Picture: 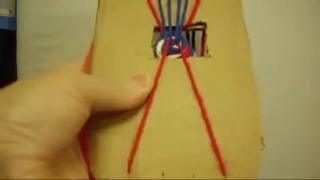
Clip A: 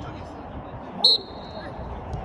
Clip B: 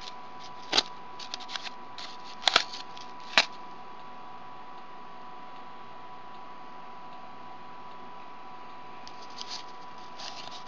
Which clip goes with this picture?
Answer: B